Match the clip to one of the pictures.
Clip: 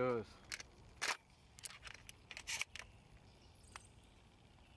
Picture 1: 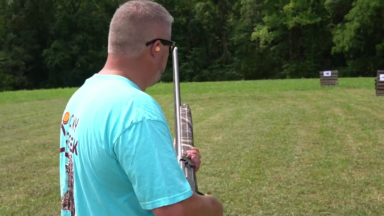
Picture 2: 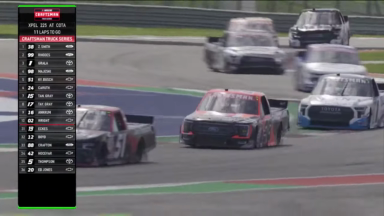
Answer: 1